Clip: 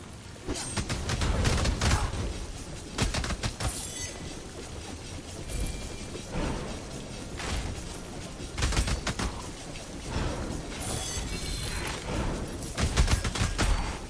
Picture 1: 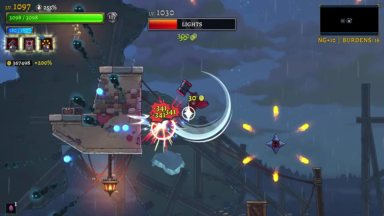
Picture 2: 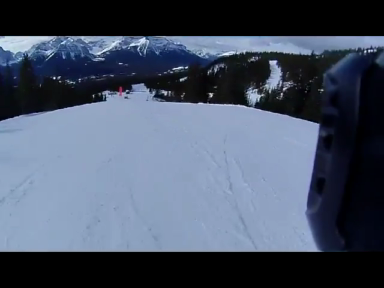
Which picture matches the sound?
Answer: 1